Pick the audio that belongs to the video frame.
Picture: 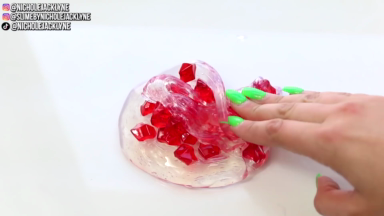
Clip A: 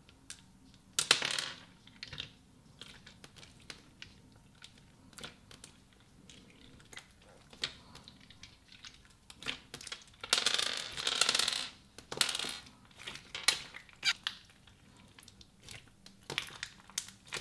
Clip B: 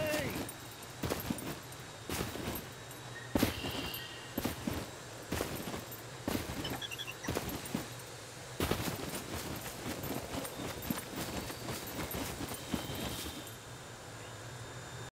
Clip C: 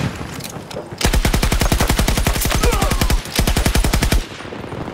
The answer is A